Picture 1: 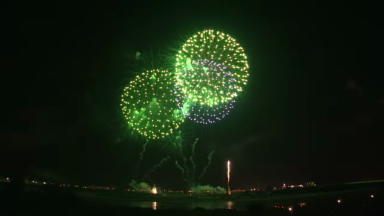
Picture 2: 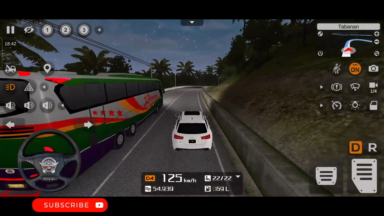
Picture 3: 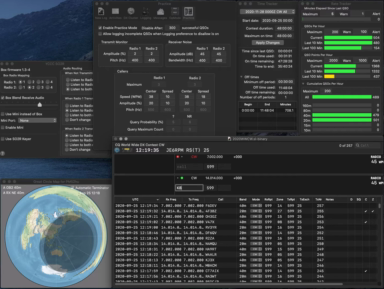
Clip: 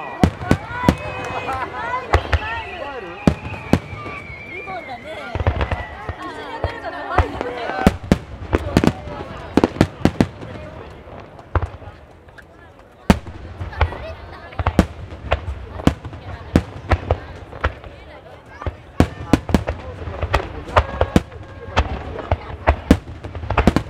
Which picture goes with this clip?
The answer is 1